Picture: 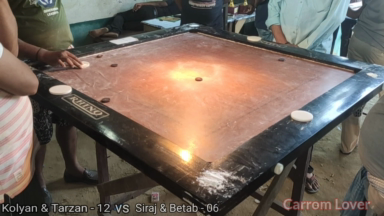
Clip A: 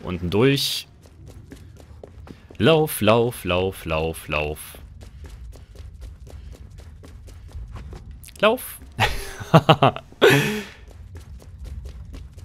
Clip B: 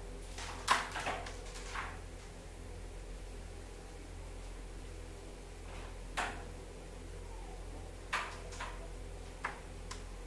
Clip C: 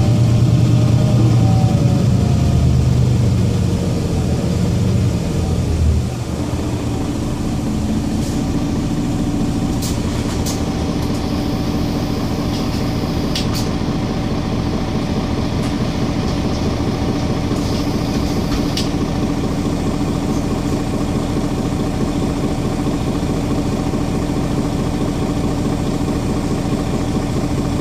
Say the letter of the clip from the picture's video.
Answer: B